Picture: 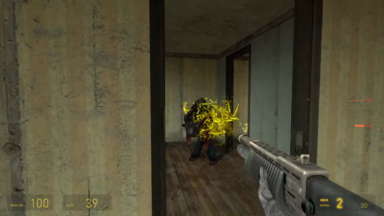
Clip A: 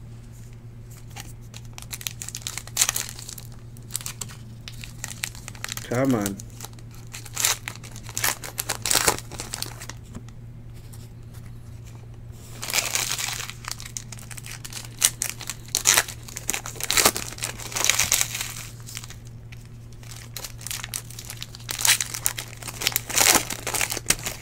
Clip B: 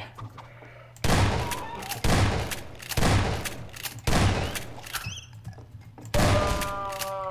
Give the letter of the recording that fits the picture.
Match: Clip B